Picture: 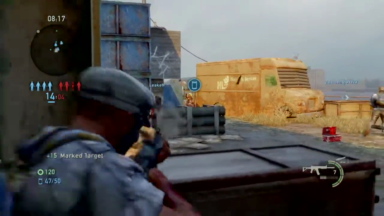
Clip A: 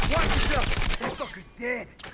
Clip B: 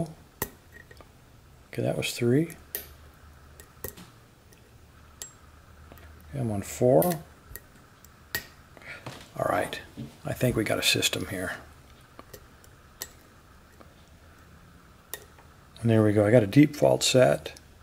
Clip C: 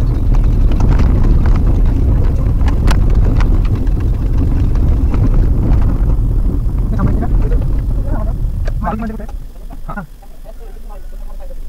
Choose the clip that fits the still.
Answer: A